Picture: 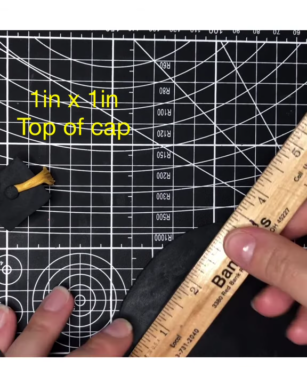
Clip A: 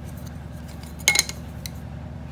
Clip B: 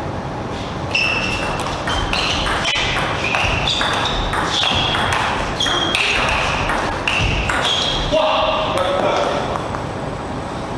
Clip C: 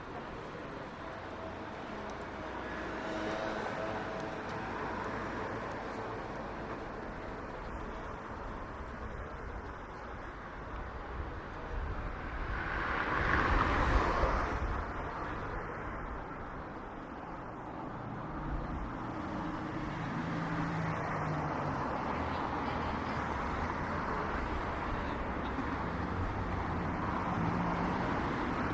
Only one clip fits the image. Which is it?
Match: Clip A